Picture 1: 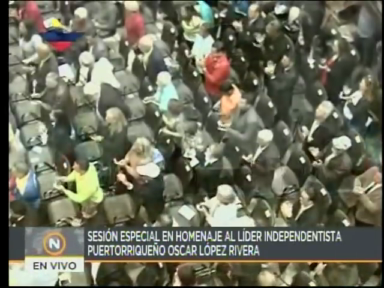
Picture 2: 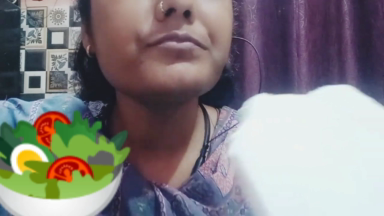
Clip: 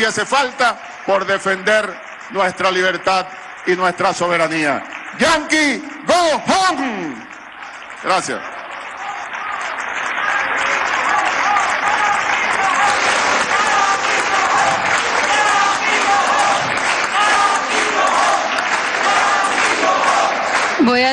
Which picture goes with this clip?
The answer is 1